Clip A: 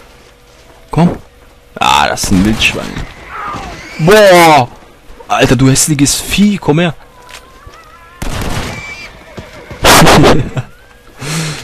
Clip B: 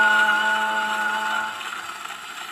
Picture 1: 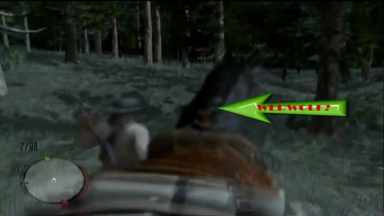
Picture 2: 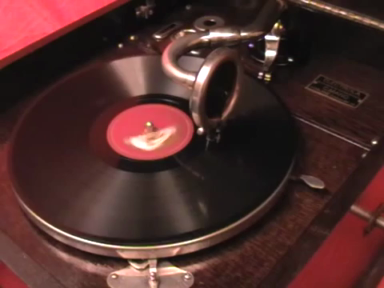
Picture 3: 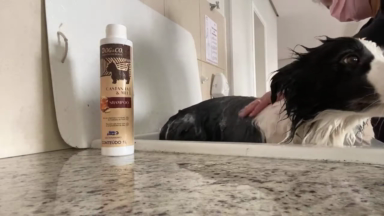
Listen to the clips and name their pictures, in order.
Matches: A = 1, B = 2